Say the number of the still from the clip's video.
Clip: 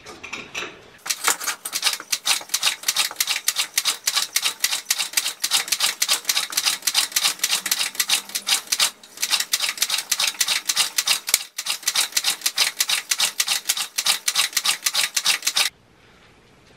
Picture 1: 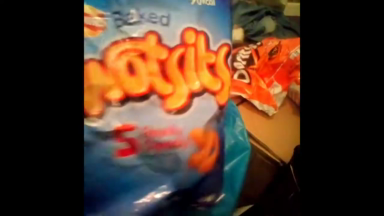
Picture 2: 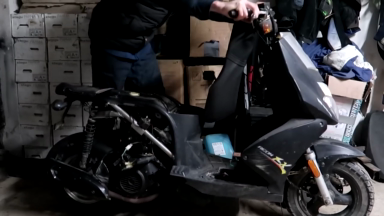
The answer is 2